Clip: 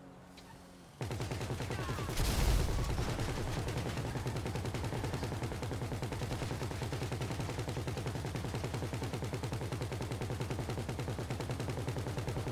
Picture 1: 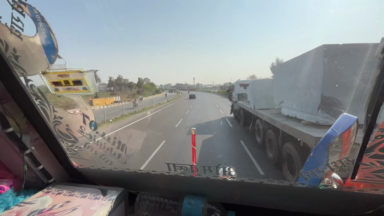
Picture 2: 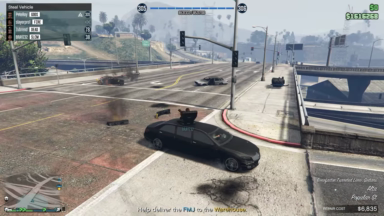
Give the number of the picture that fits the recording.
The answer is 2